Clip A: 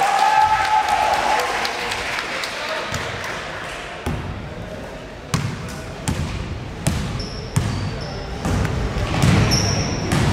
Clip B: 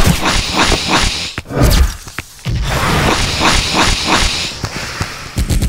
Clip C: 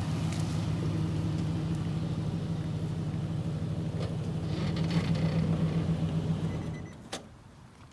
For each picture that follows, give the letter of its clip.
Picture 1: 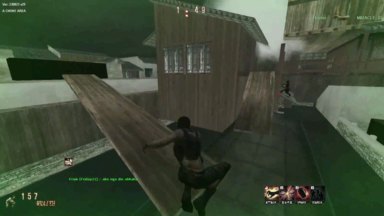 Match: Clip B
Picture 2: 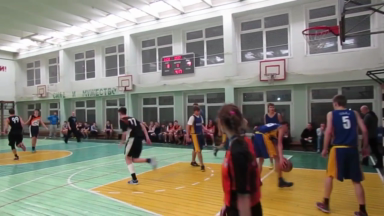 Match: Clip A